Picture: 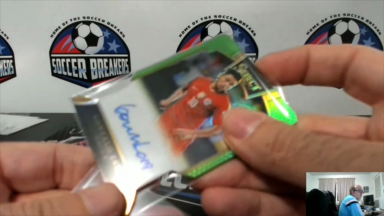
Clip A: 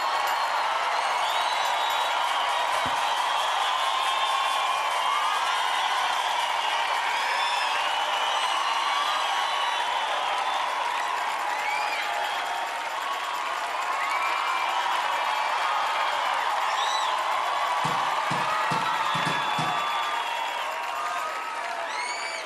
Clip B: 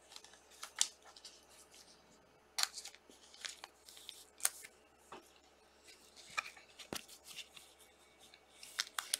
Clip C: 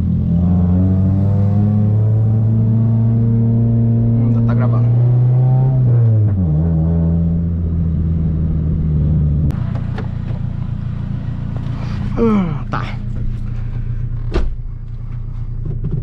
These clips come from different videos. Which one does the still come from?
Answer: B